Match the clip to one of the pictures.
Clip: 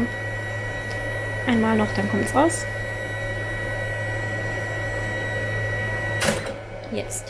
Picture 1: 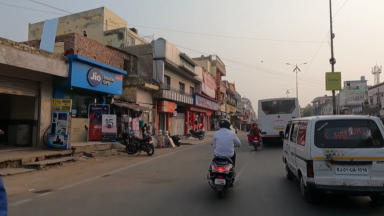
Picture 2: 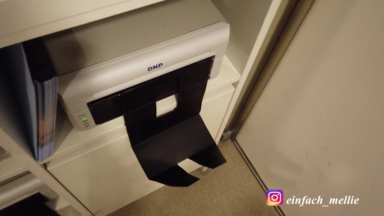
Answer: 2